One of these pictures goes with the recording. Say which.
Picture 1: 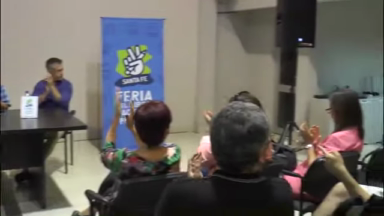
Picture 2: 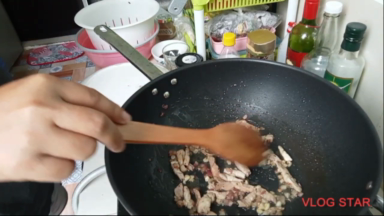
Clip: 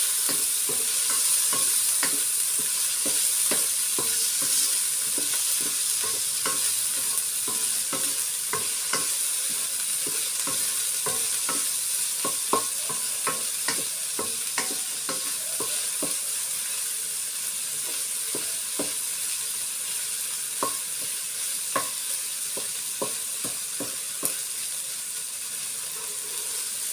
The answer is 2